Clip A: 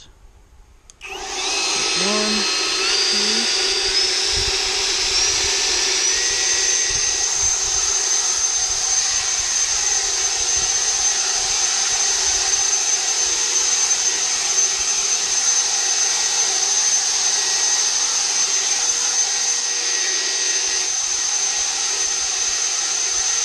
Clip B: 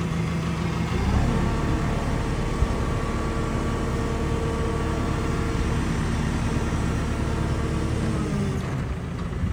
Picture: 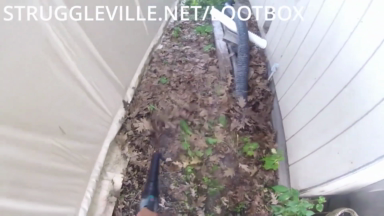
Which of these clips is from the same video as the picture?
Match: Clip A